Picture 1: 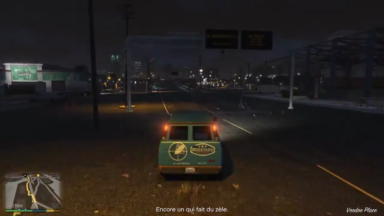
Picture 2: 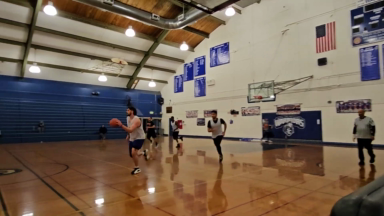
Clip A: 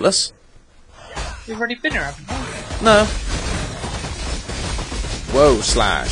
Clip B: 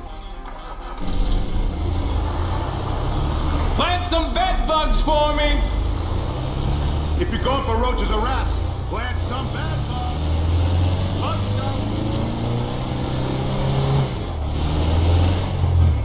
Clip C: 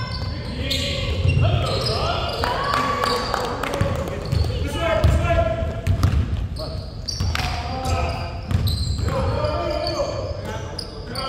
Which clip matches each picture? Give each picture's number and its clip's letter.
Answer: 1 B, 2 C